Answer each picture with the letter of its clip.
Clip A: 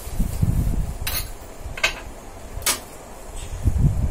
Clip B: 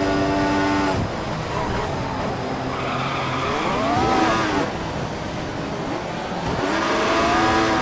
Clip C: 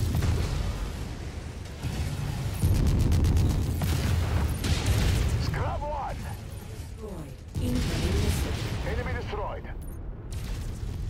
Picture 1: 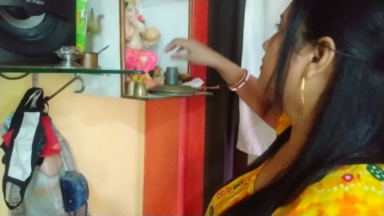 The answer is A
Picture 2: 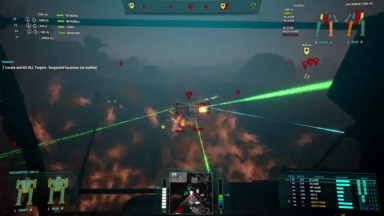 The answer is C